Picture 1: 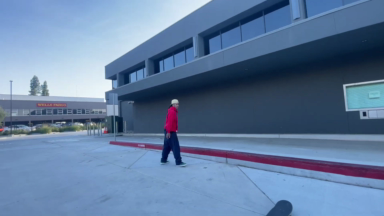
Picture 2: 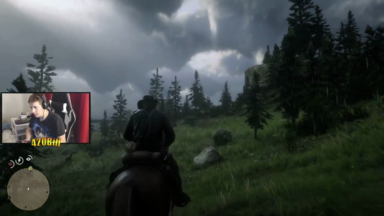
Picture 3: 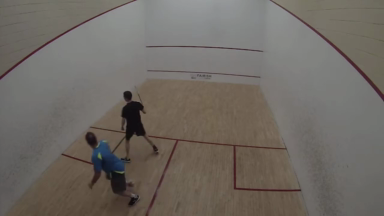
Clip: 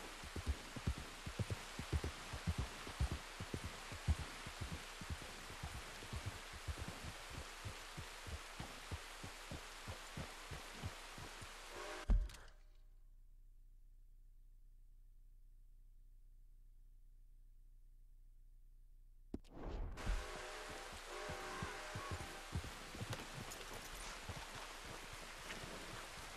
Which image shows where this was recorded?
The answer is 2